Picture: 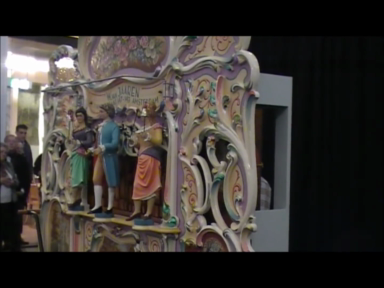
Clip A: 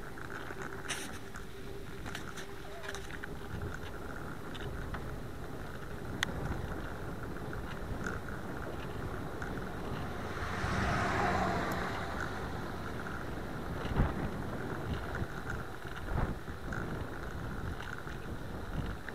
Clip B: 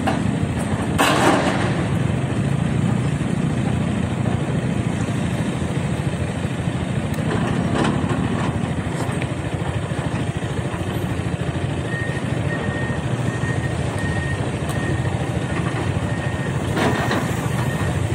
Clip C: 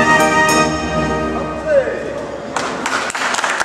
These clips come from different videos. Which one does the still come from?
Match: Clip C